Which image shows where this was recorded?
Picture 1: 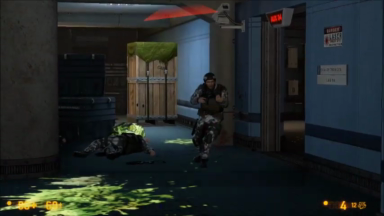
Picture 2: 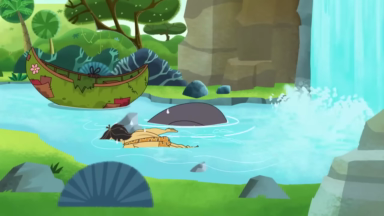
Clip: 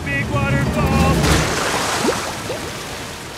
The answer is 2